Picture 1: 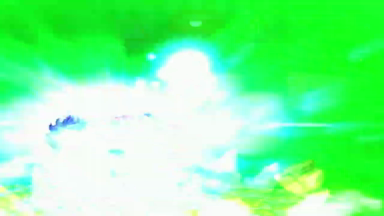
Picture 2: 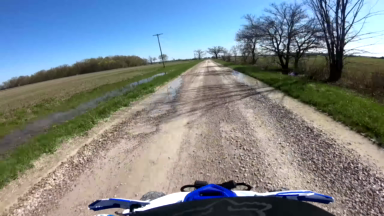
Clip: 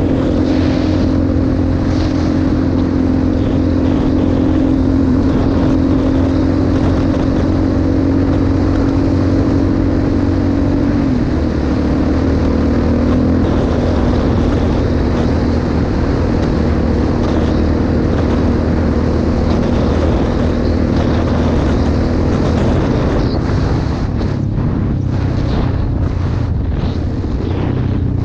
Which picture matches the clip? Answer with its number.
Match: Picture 2